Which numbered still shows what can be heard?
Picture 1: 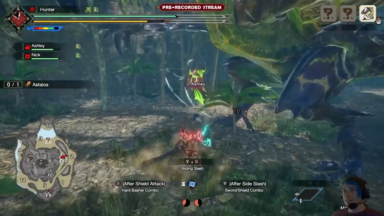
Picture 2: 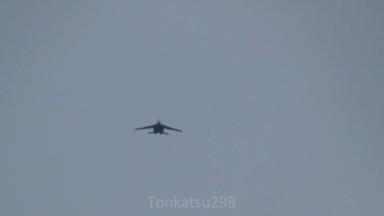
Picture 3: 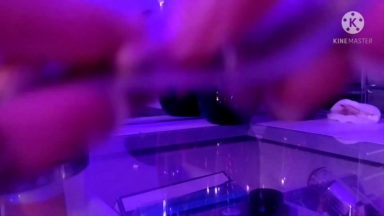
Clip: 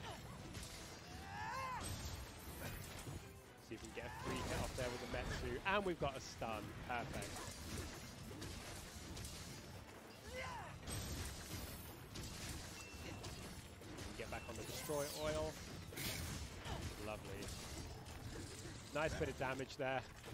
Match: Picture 1